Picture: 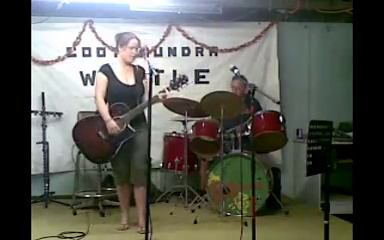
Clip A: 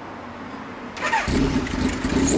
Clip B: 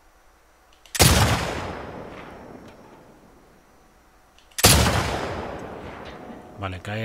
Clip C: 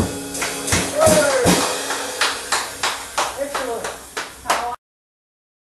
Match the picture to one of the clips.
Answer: C